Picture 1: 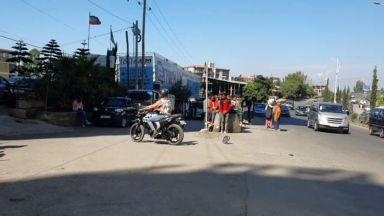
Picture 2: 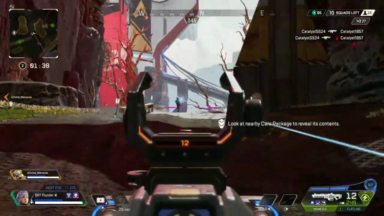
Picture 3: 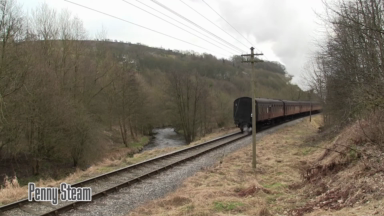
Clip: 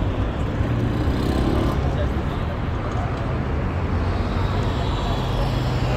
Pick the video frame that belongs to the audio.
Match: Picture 1